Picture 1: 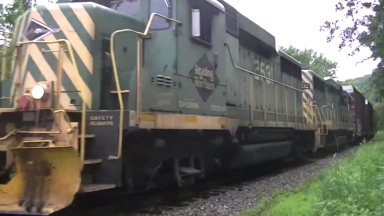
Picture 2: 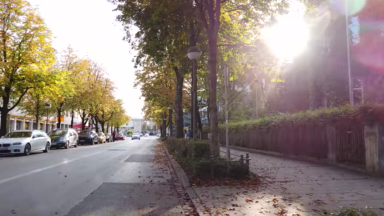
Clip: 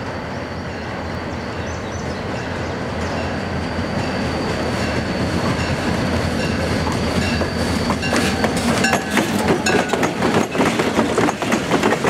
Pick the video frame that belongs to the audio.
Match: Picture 1